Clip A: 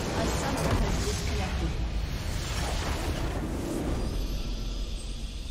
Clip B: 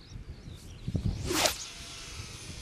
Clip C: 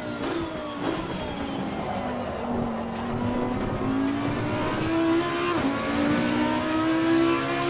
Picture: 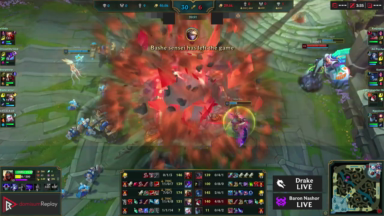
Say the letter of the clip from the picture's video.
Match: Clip A